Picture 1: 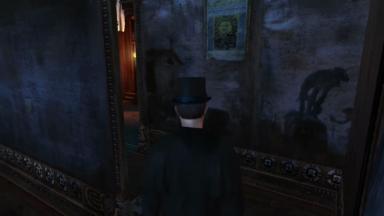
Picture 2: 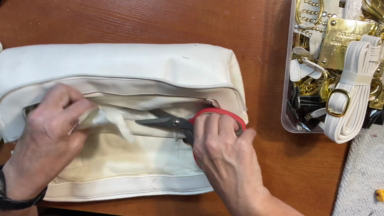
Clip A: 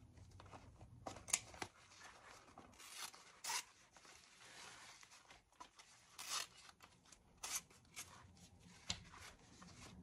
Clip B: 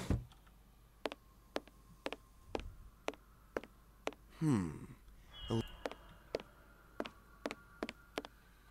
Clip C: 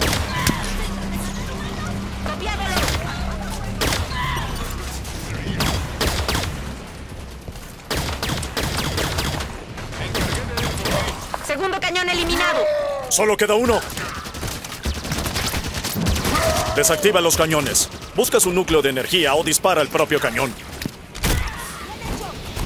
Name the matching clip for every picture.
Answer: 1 B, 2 A